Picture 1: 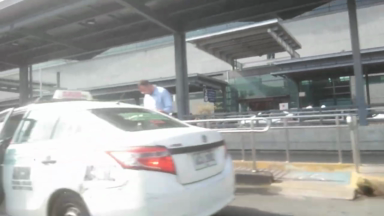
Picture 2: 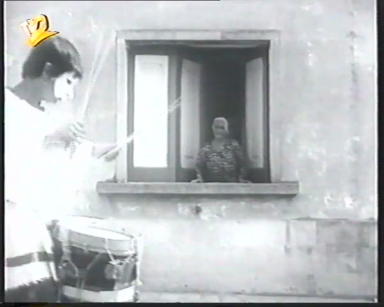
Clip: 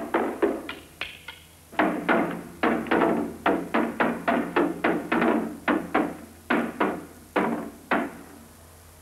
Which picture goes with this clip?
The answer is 2